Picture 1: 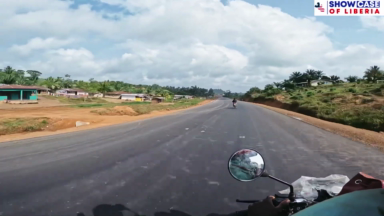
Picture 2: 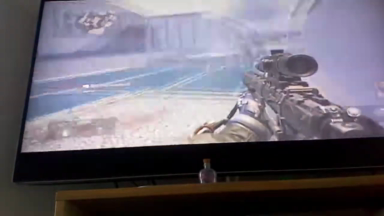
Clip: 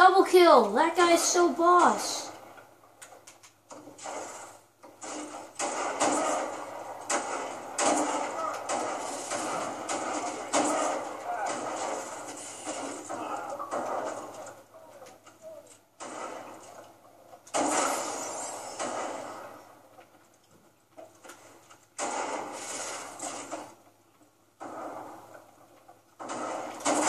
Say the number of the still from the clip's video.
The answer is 2